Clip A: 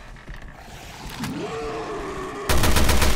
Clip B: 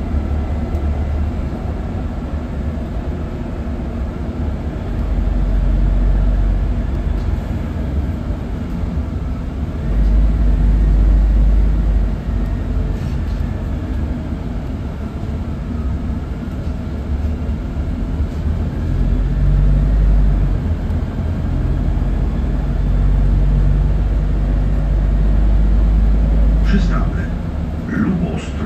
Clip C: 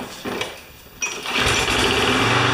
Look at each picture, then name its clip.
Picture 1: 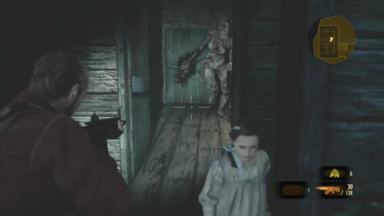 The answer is A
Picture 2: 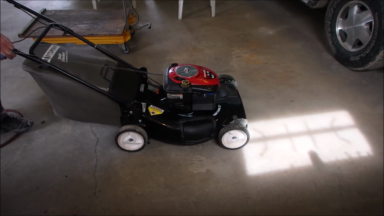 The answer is C